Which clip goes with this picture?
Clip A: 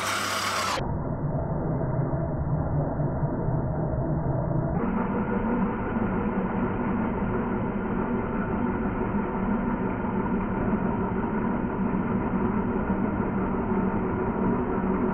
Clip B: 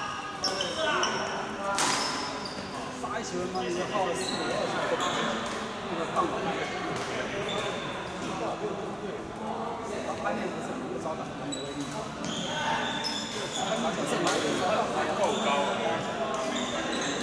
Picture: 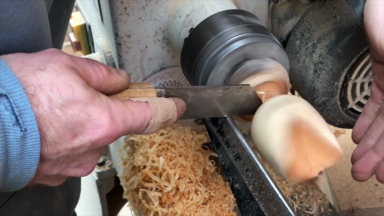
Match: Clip A